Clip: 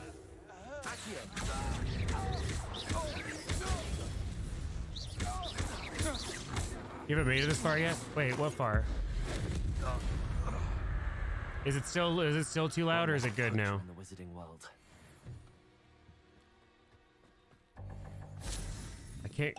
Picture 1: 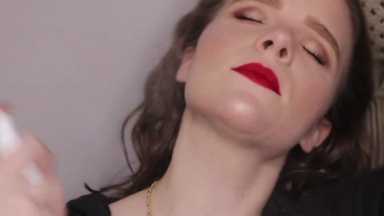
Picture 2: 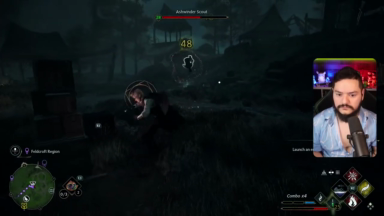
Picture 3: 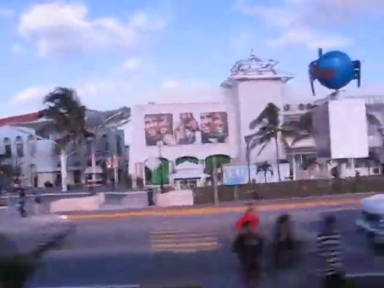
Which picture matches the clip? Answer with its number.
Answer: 2